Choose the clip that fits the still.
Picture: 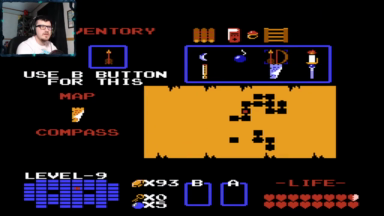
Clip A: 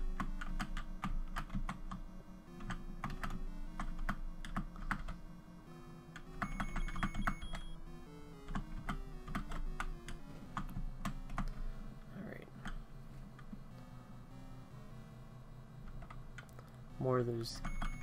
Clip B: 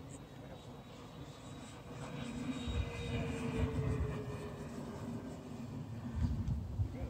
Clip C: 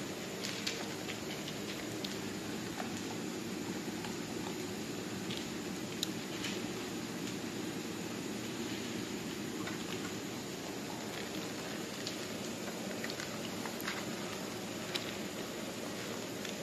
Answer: A